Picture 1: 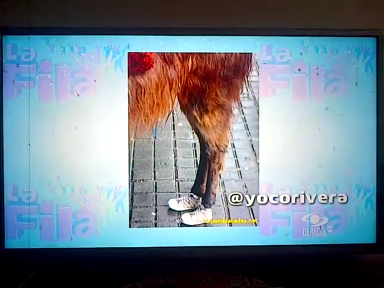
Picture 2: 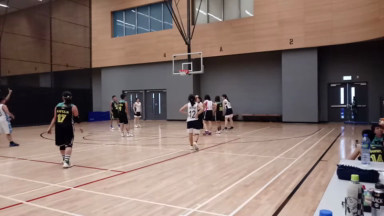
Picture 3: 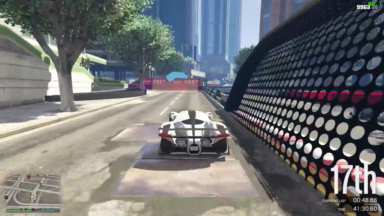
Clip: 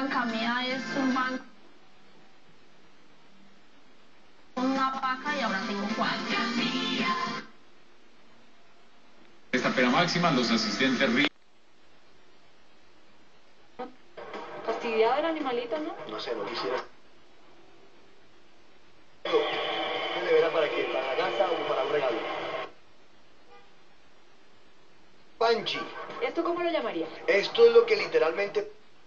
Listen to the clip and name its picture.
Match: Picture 1